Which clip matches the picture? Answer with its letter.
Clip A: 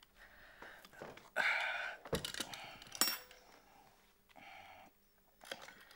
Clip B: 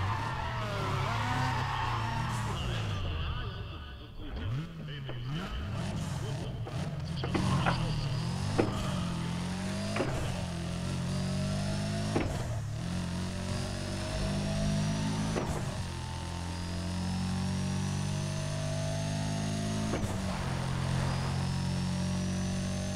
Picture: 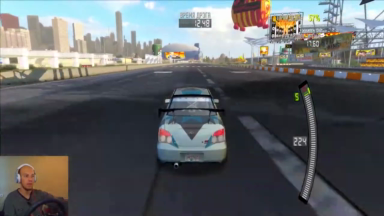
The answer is B